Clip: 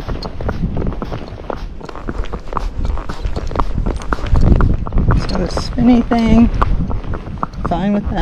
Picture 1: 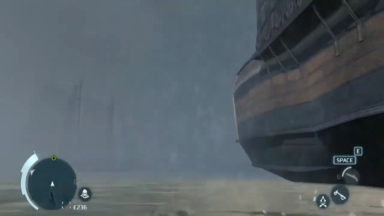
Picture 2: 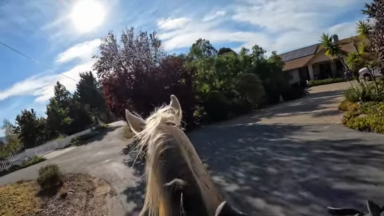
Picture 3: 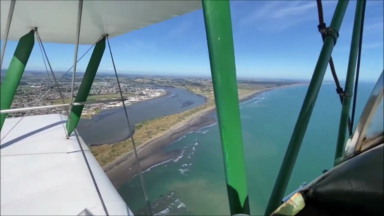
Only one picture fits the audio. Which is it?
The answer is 2